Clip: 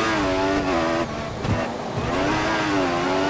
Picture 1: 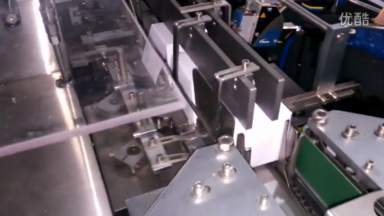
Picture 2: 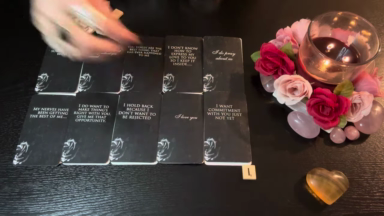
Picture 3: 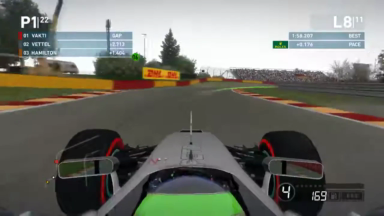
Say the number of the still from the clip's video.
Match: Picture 3